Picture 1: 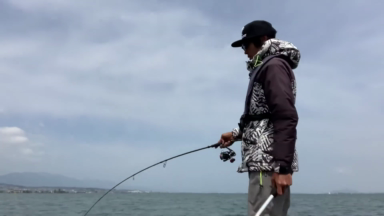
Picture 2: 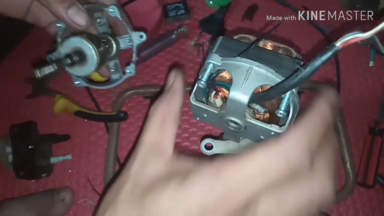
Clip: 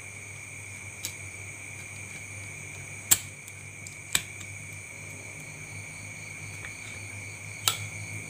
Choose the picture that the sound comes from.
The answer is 2